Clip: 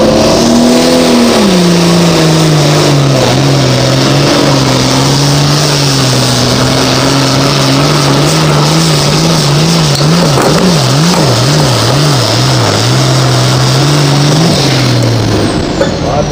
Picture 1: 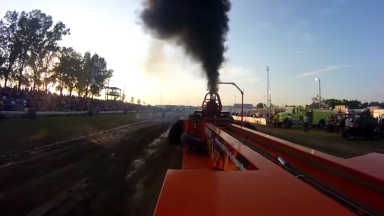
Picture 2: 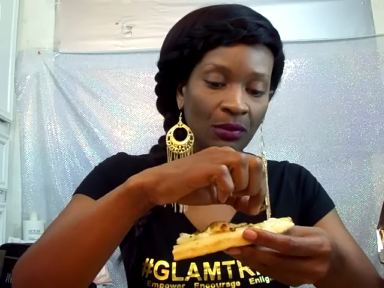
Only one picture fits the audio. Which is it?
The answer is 1